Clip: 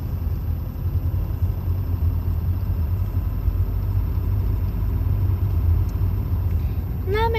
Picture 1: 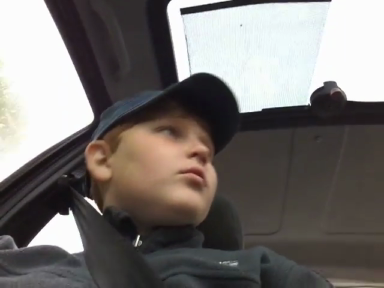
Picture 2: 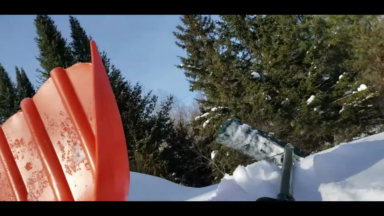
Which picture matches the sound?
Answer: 1